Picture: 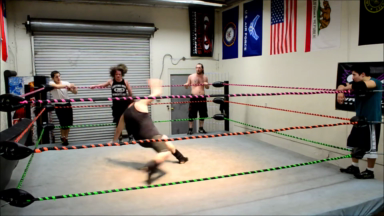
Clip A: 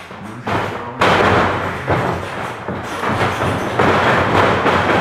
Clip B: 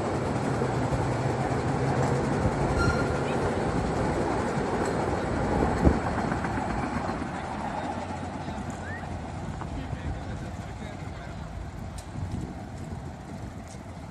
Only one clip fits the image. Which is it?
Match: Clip A